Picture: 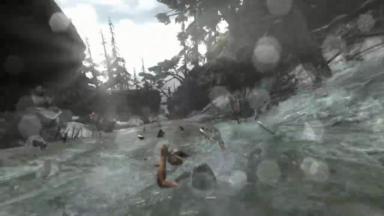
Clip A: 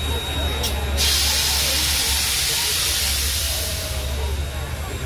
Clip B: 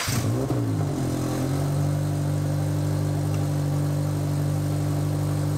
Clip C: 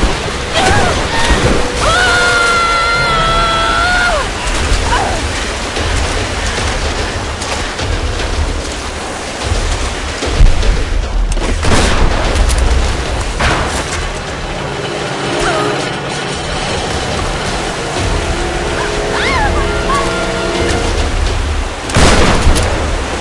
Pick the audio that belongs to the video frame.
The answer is C